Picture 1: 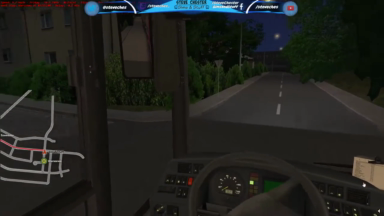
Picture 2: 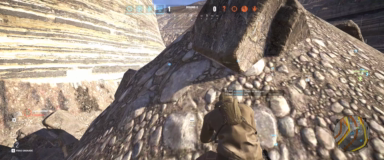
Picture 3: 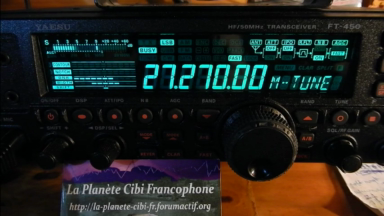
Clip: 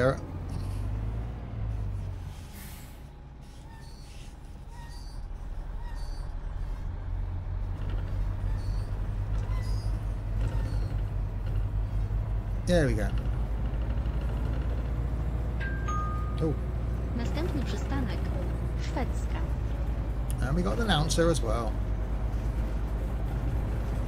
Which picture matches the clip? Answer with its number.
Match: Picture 1